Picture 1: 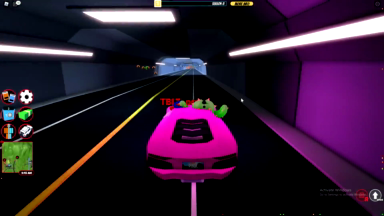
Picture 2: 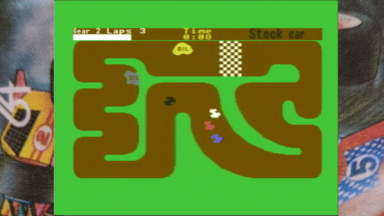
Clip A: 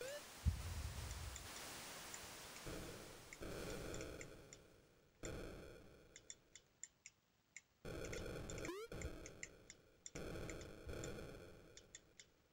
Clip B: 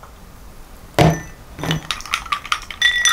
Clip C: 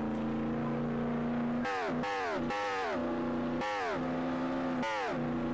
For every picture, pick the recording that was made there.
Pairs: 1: C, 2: A